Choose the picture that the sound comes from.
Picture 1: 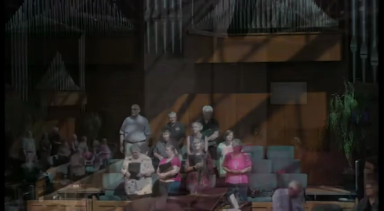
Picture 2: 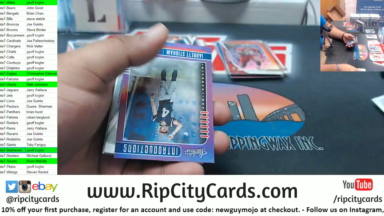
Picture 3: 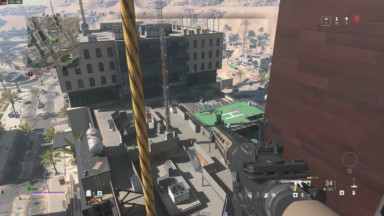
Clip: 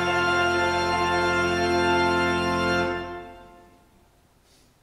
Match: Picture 1